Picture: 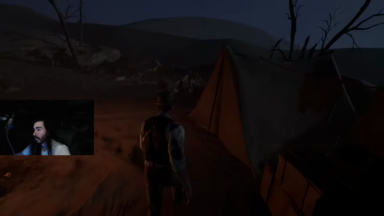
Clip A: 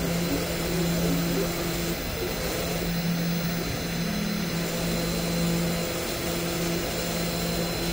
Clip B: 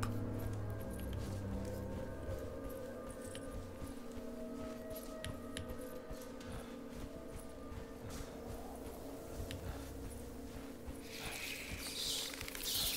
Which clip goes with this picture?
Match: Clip B